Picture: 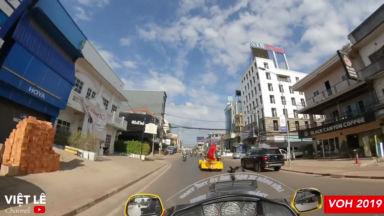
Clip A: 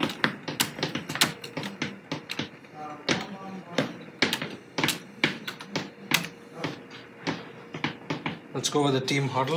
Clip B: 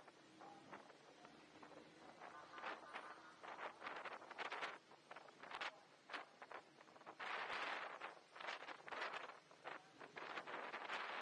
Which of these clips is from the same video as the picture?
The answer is B